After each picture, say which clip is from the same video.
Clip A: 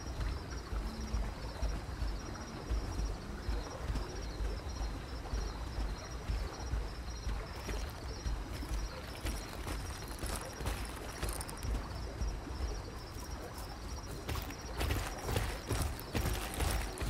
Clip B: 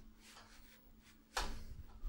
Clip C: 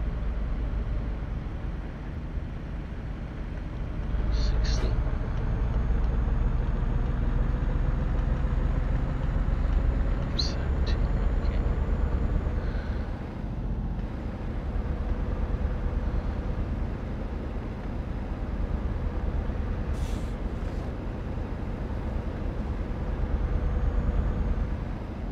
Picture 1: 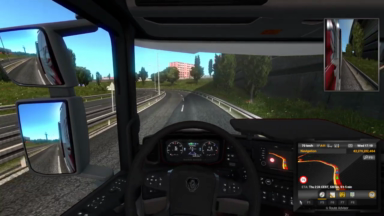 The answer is C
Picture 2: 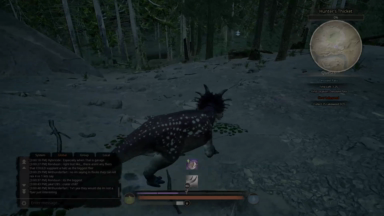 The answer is A